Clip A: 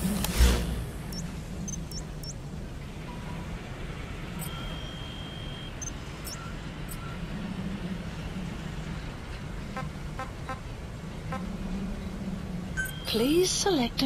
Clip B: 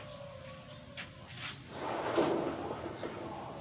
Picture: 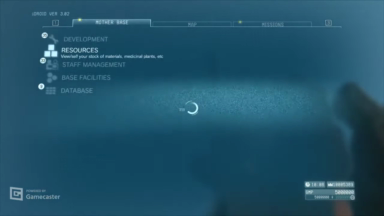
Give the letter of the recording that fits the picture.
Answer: A